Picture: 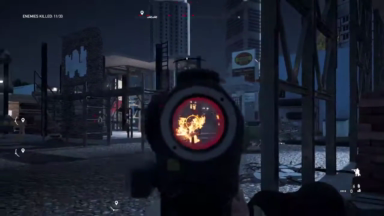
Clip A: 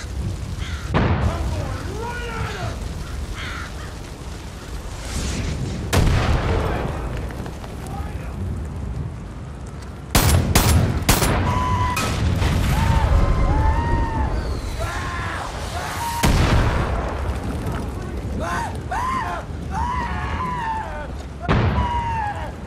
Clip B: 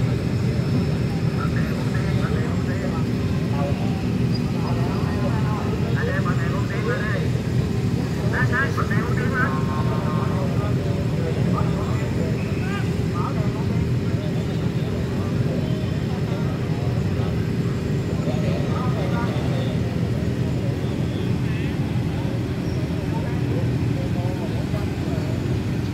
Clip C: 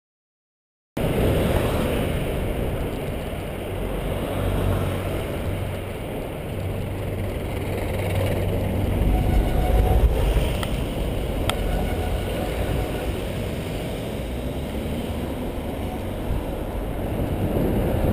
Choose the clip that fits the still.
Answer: A